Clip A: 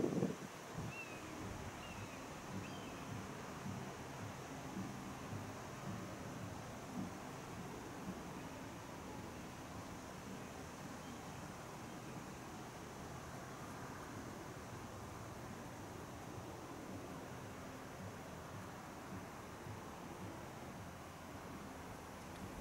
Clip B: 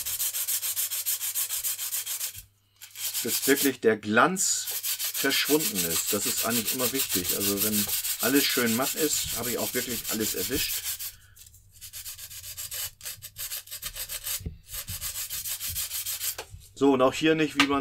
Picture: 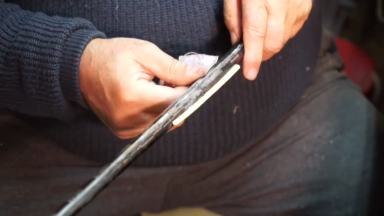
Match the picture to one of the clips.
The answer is B